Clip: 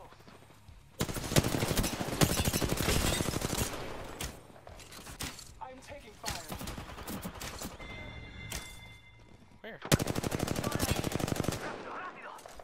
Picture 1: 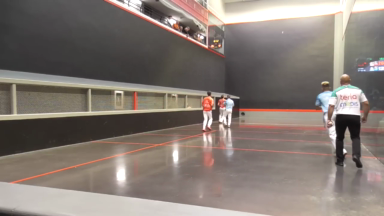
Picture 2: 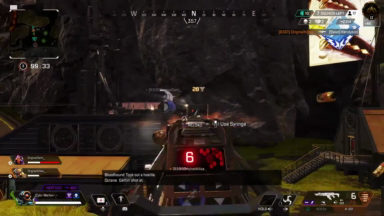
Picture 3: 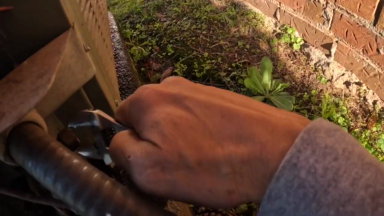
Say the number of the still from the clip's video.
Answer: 2